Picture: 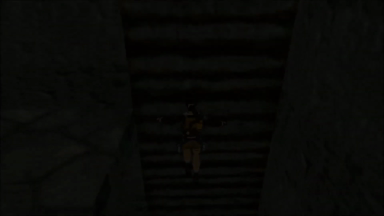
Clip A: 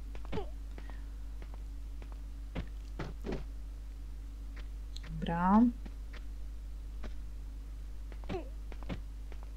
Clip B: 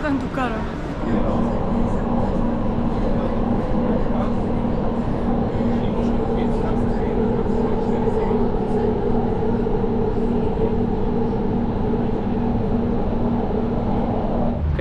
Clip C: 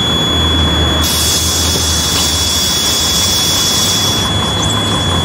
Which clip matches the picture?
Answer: A